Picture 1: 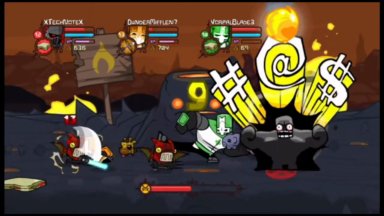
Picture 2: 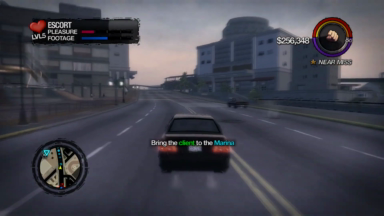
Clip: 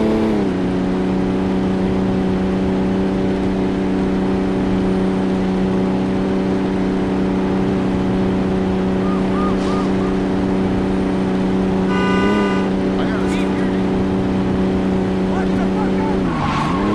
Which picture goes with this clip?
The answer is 2